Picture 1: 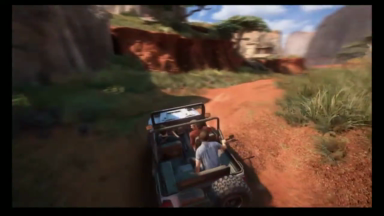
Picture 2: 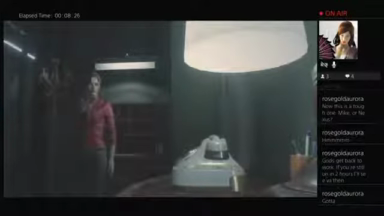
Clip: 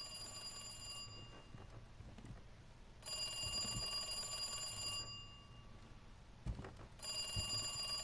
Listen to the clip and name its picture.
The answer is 2